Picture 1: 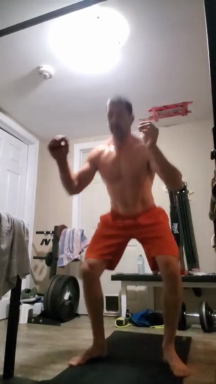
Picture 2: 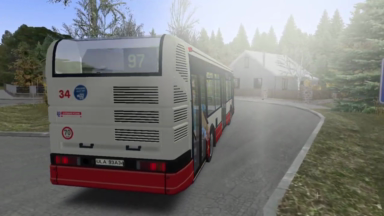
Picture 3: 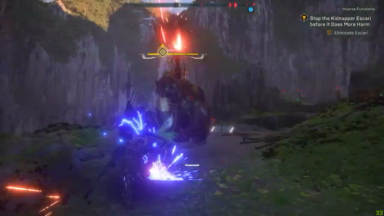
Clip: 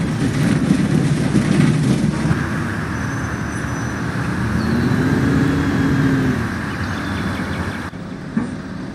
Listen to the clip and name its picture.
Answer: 2